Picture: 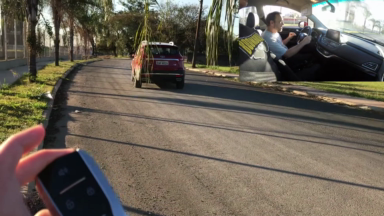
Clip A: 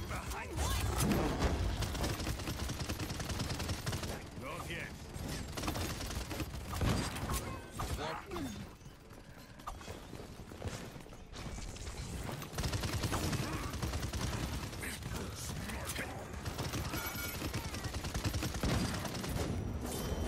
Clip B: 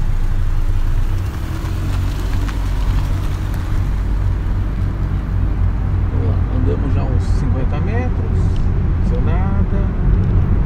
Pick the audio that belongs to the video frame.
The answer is B